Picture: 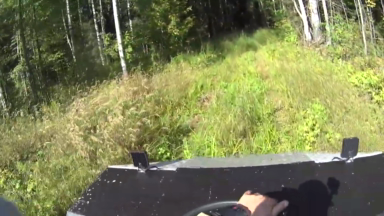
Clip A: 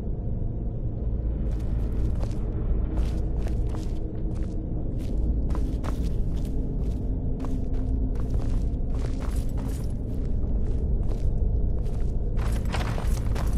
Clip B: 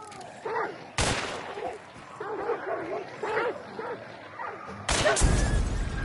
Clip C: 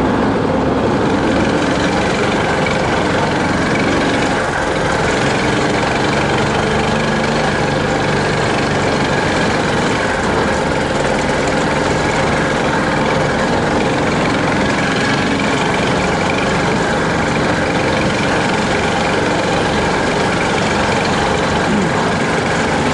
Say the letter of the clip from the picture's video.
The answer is C